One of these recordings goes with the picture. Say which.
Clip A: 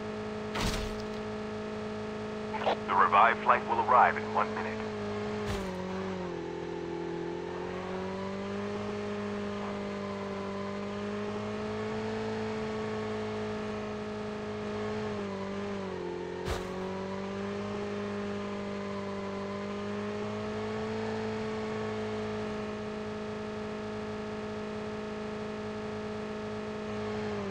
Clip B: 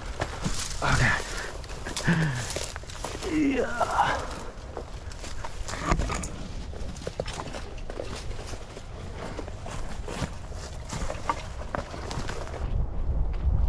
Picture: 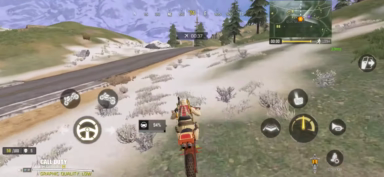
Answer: A